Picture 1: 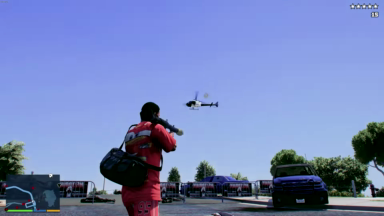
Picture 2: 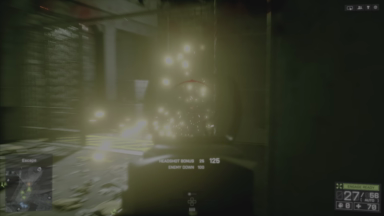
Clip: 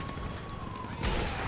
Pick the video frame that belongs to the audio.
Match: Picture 1